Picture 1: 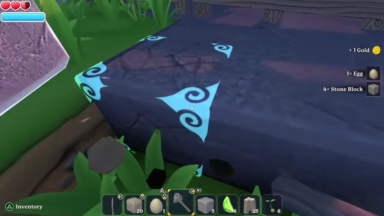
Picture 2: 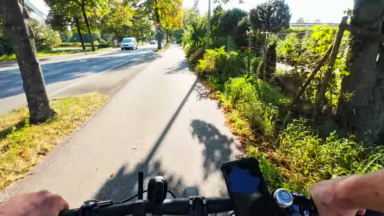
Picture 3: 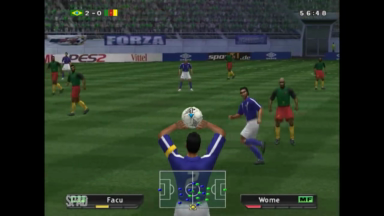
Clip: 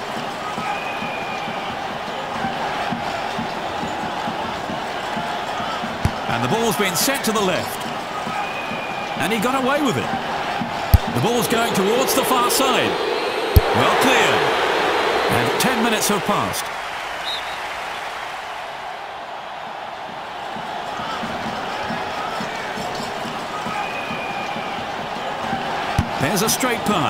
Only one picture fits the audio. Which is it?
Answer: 3